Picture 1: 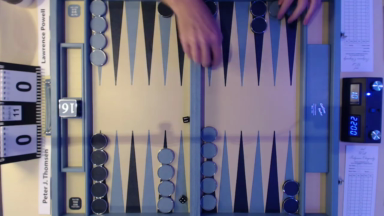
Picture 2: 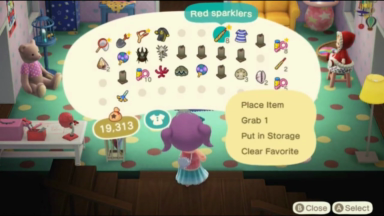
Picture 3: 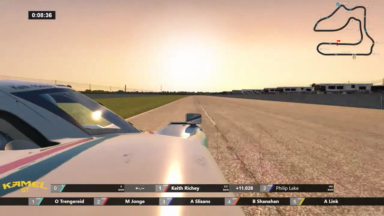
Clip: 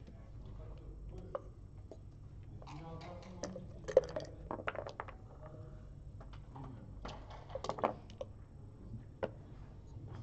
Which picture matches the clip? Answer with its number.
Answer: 1